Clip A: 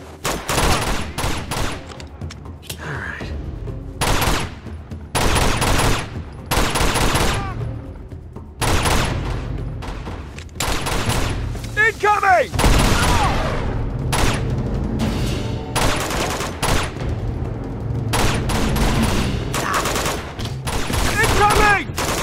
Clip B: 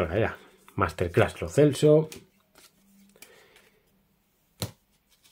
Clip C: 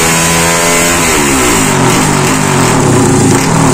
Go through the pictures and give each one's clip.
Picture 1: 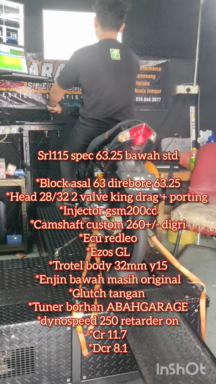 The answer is C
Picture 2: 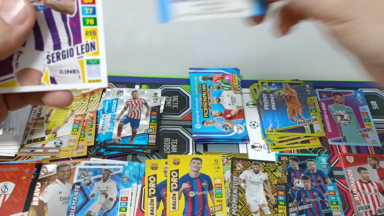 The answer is B